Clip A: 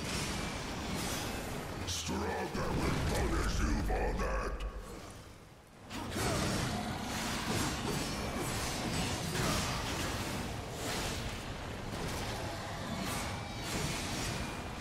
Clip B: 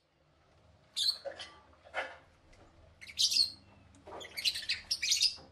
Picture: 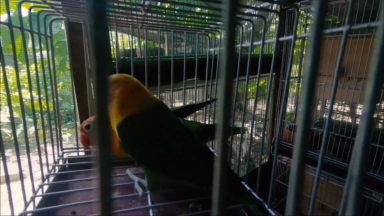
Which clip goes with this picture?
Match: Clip B